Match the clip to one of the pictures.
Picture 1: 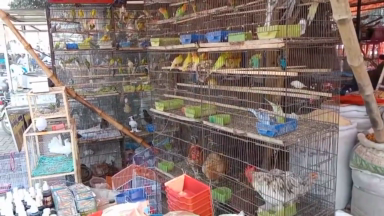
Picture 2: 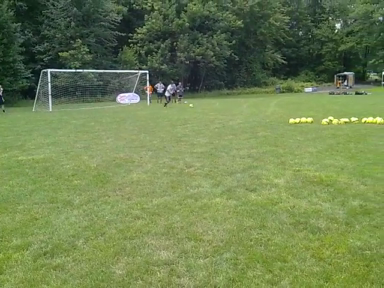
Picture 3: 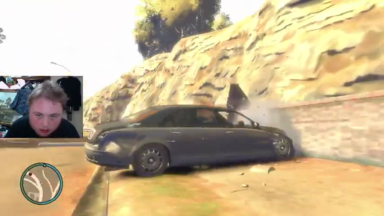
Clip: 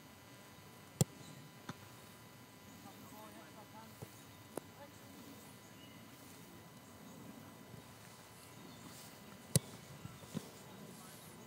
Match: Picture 2